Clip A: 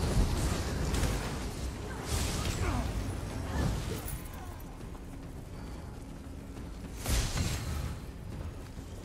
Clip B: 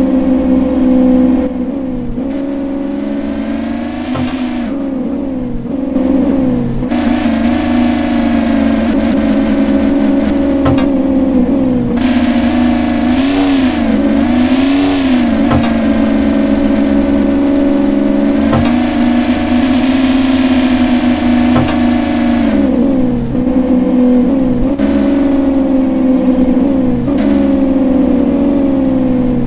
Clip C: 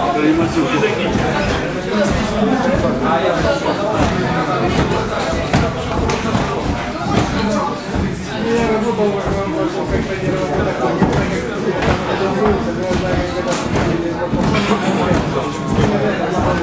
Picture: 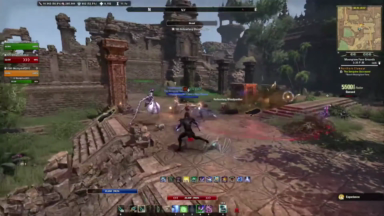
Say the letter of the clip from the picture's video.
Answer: A